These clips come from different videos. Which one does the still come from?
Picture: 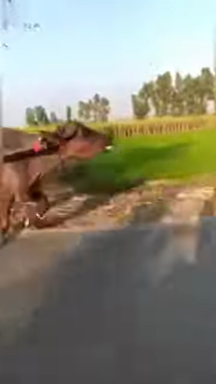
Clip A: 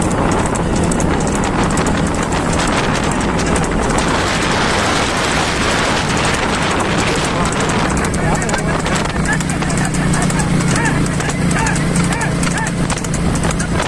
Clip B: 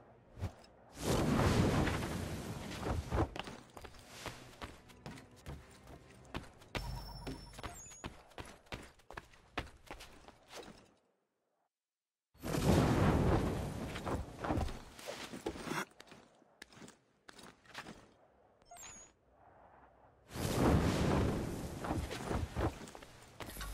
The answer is A